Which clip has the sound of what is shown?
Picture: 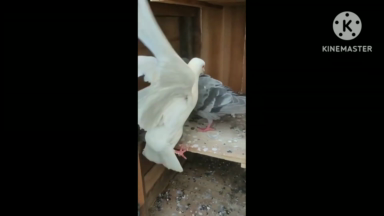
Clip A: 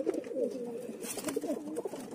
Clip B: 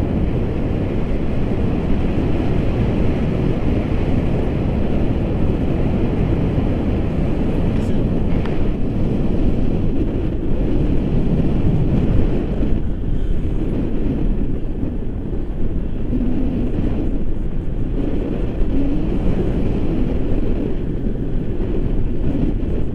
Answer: A